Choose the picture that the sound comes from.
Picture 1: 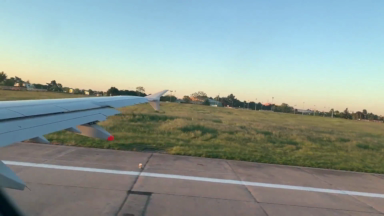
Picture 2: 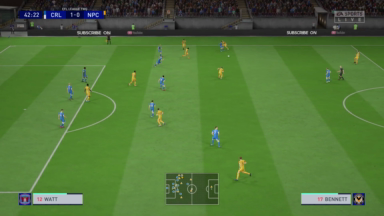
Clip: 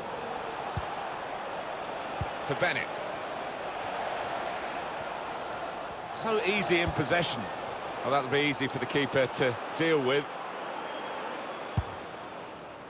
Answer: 2